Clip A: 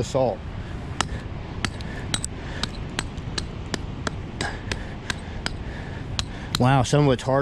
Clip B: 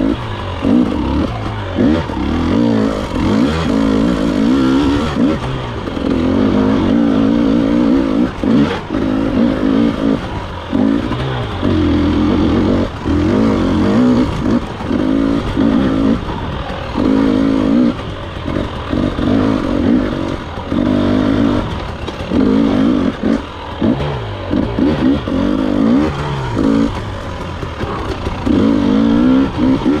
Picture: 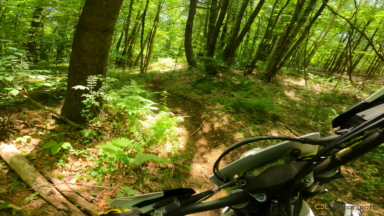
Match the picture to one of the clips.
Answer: B